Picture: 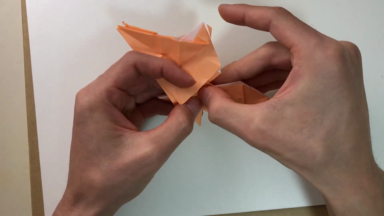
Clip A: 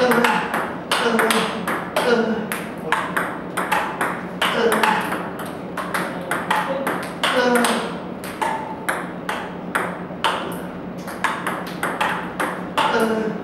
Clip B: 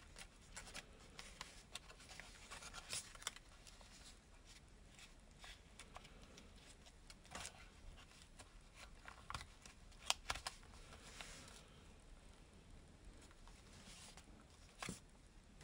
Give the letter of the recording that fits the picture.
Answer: B